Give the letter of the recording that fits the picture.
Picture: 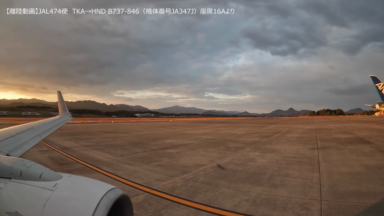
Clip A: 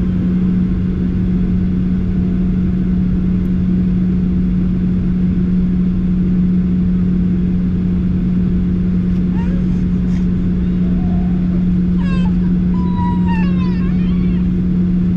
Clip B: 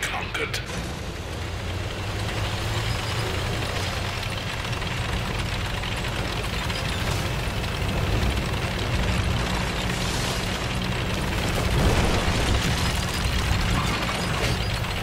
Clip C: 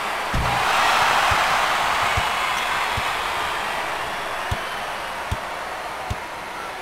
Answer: A